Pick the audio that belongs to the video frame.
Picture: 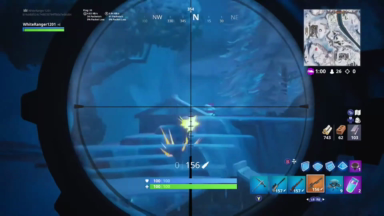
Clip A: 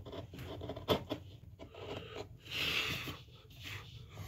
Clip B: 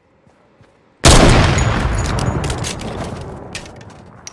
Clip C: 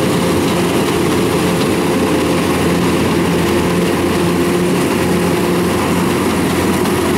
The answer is B